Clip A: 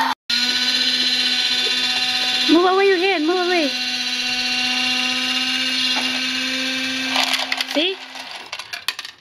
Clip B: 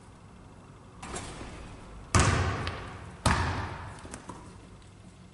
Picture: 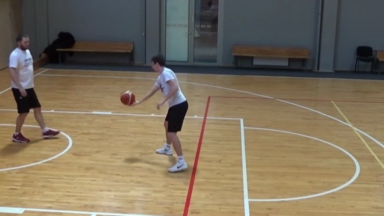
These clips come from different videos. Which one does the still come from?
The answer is B